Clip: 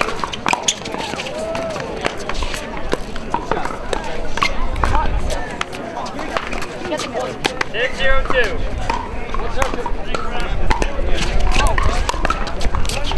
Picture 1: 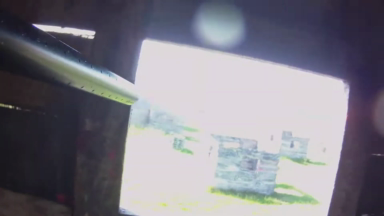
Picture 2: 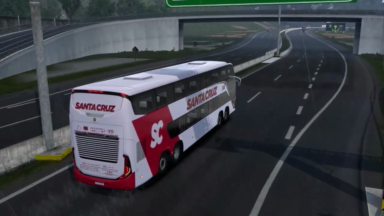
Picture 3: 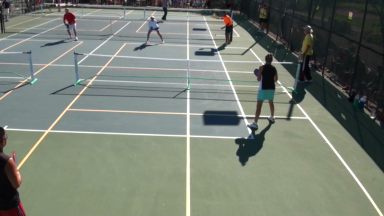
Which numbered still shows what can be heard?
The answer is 3